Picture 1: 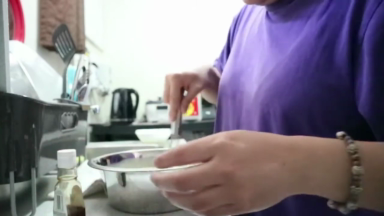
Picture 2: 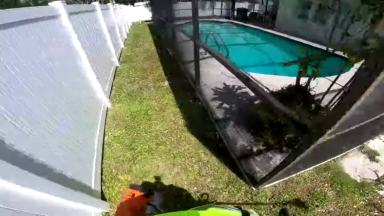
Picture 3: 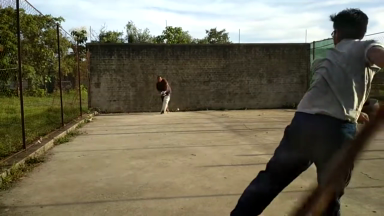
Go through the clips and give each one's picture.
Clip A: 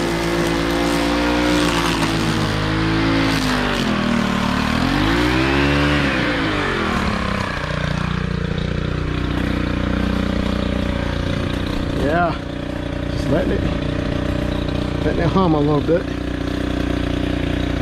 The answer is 2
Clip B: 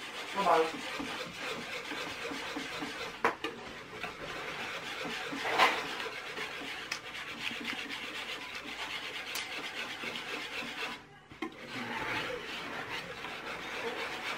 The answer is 1